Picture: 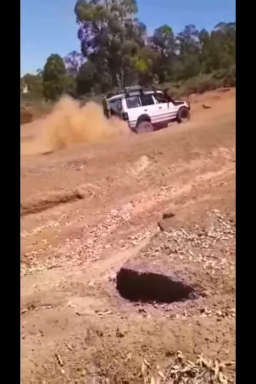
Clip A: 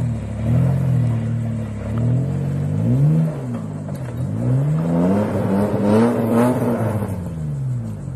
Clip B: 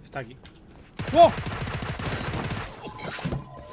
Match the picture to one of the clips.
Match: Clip A